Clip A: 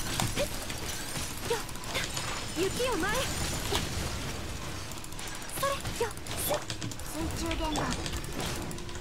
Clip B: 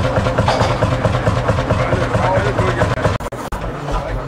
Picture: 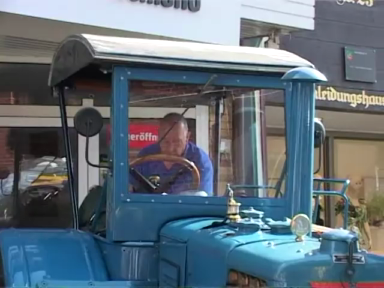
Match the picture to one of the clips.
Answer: B